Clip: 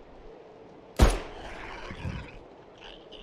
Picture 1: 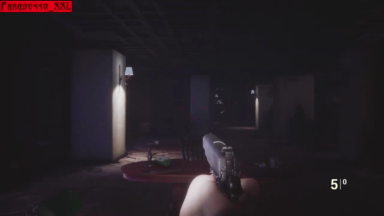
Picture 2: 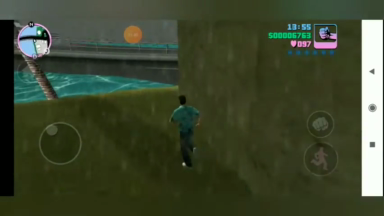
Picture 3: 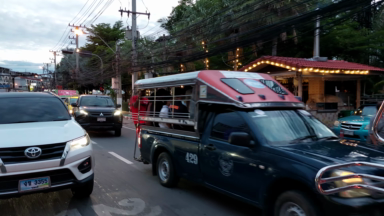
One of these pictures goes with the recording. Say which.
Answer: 1